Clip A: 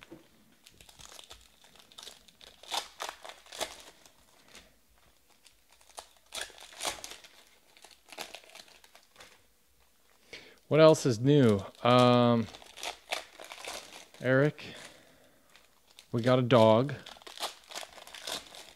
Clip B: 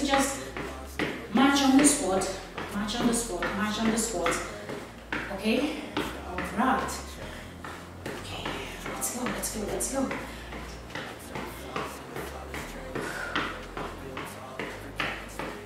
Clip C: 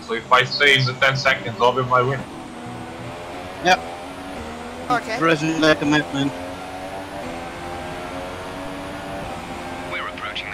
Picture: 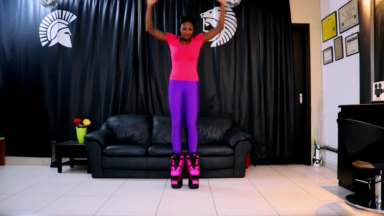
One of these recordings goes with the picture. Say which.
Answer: B